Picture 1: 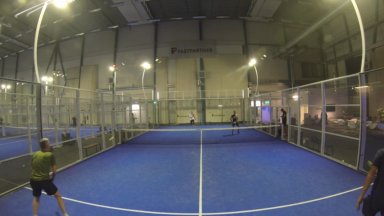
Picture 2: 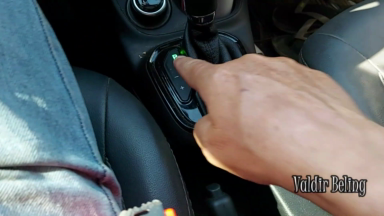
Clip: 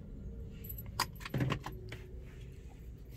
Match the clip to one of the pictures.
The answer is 2